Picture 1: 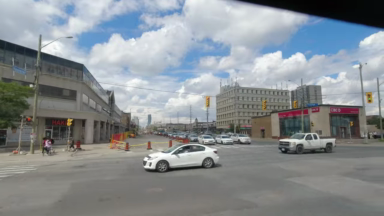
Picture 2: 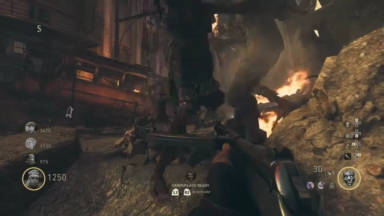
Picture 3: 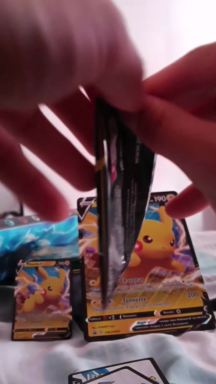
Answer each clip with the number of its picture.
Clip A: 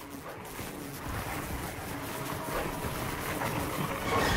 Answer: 2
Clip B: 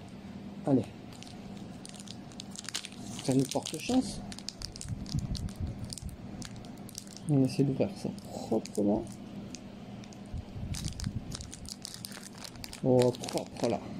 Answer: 3